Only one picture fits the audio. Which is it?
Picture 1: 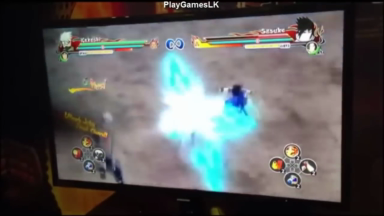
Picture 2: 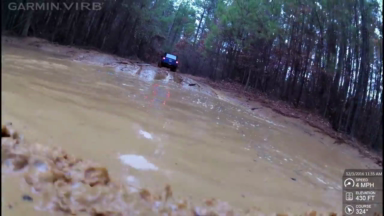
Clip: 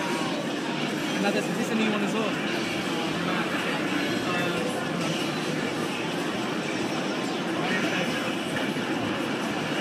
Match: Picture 1